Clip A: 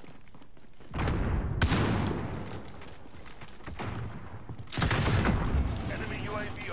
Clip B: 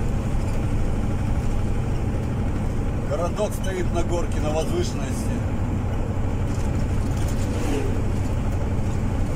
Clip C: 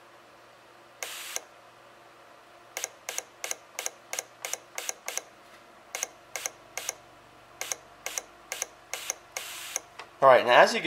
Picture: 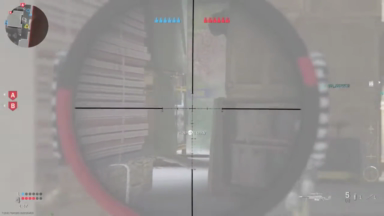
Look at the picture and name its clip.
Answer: A